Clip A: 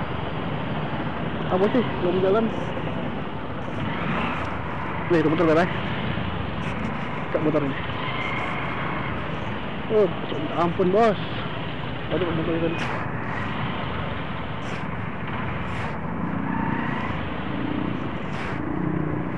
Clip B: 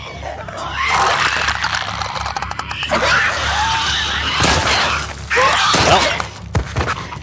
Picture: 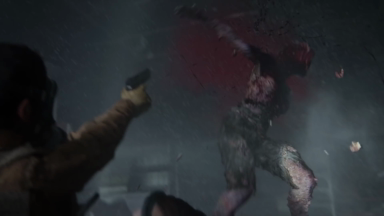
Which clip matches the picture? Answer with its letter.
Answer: B